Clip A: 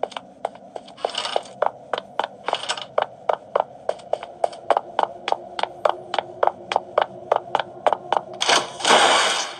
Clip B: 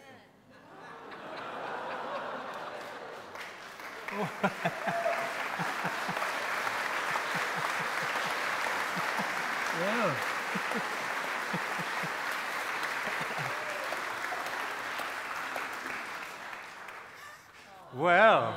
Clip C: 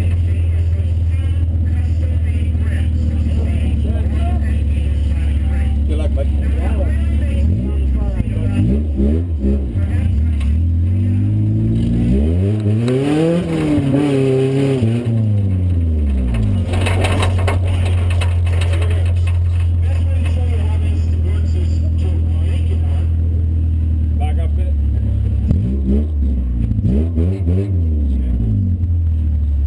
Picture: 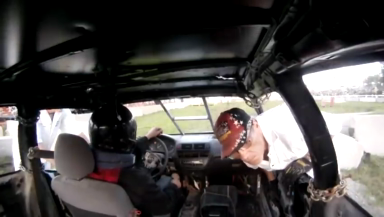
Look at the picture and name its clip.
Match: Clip C